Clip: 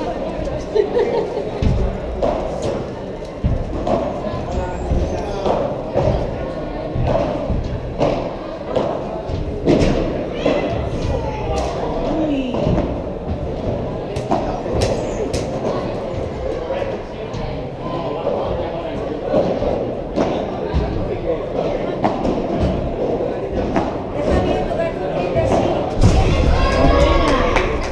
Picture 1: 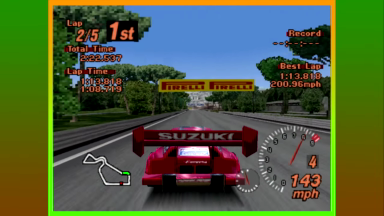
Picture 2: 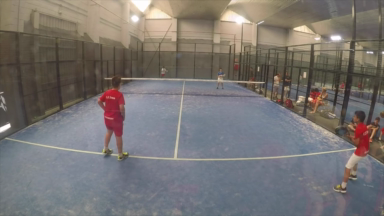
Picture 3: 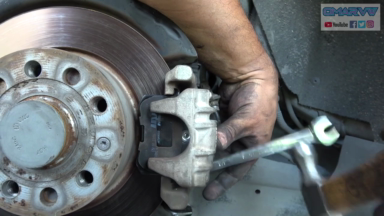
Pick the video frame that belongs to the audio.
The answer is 2